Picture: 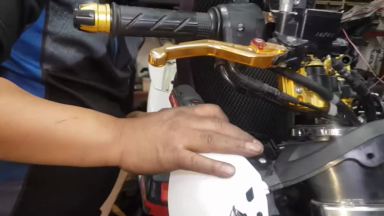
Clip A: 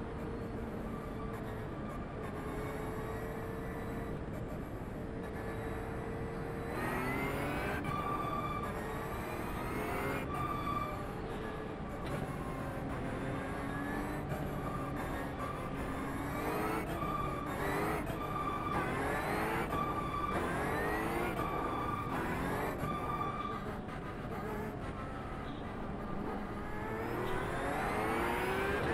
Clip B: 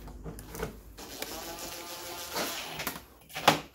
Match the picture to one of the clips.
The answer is B